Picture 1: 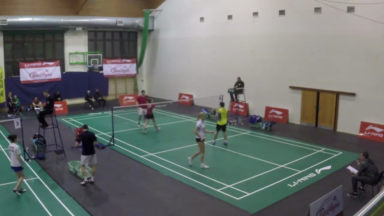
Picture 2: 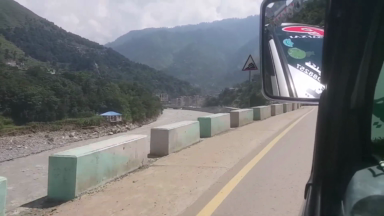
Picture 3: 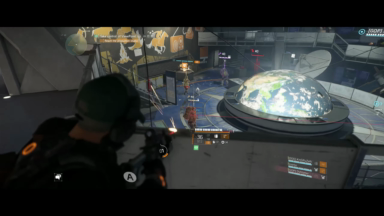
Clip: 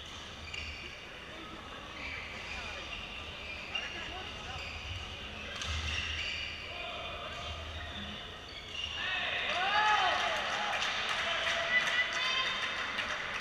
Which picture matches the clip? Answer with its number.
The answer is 1